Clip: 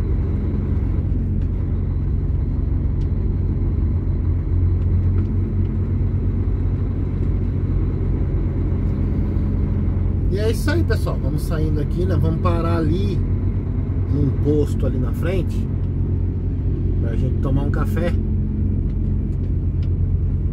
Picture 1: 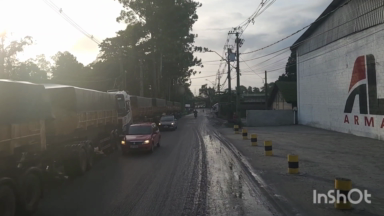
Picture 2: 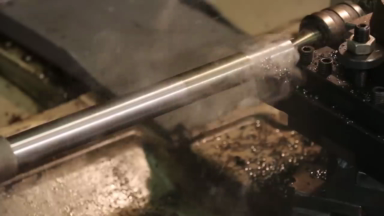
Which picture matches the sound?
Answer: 1